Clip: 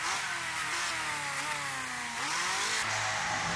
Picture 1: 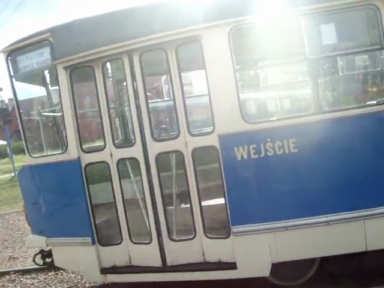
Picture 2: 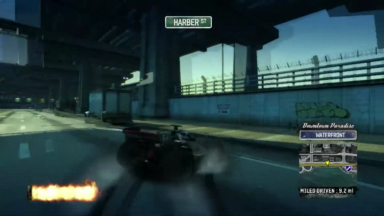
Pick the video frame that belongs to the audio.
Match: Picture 2